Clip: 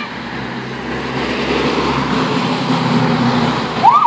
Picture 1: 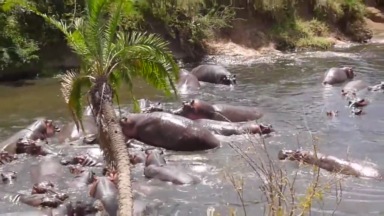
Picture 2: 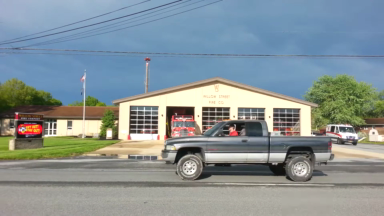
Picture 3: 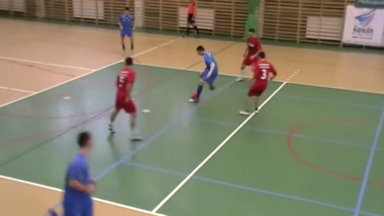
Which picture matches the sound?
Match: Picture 2